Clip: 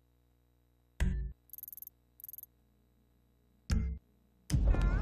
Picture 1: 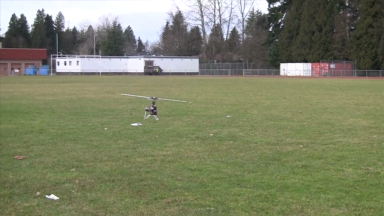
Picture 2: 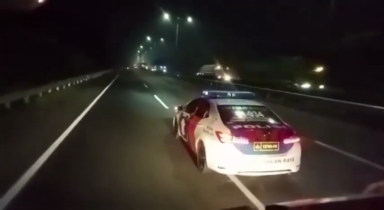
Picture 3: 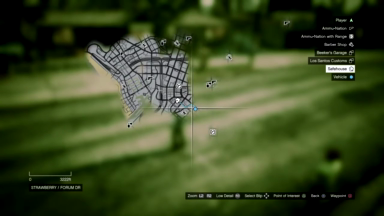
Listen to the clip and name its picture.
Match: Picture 3